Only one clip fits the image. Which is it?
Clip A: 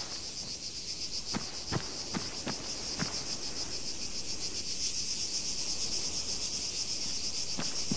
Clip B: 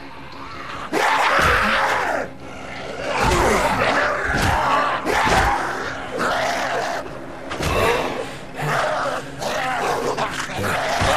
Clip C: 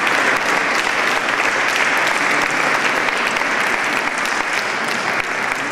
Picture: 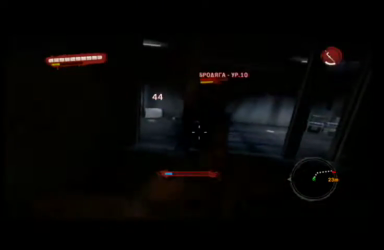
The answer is B